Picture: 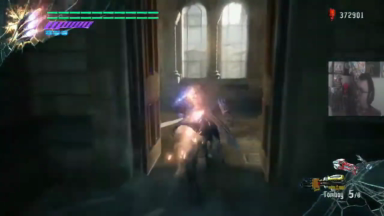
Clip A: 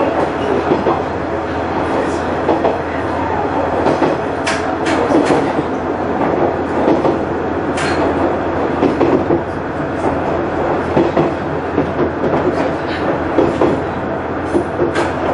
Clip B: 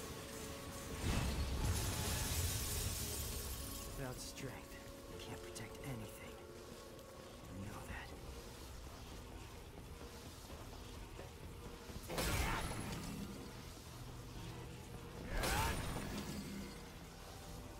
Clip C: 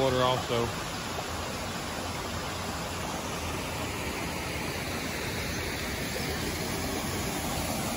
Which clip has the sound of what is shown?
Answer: B